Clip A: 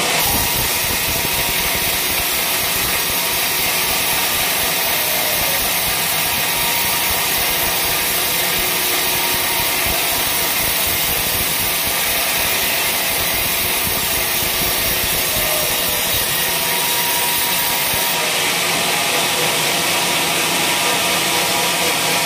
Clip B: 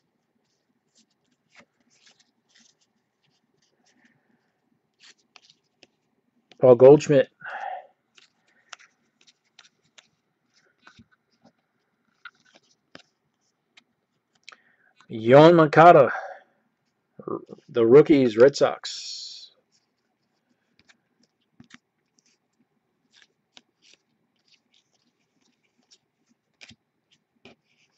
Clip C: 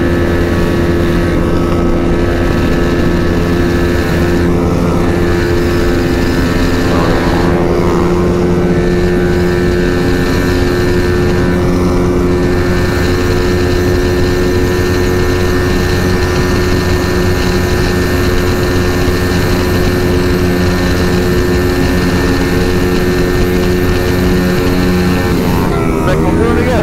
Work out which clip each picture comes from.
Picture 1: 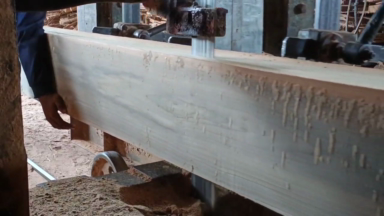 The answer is A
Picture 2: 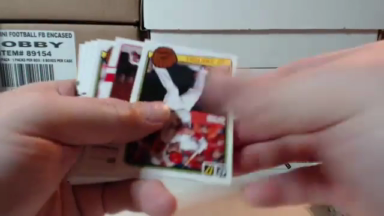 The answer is B